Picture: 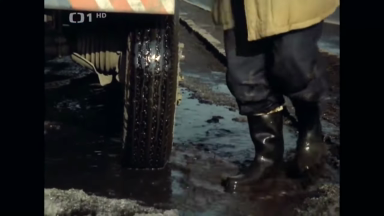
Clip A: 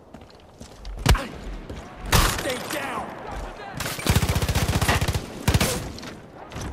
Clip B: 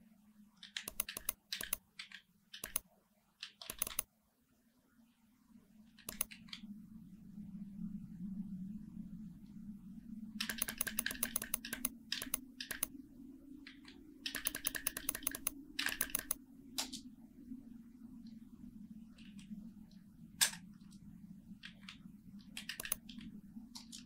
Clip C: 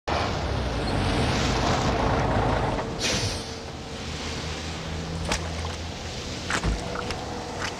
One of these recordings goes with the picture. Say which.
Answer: C